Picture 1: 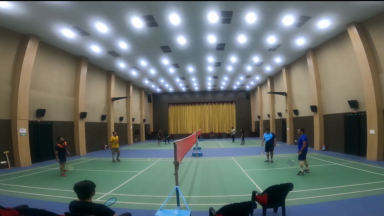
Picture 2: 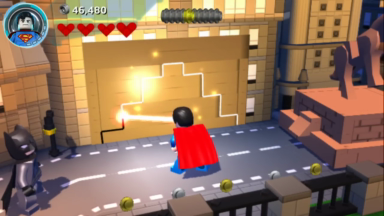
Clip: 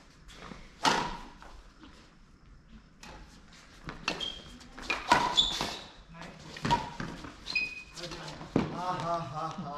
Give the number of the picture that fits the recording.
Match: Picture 1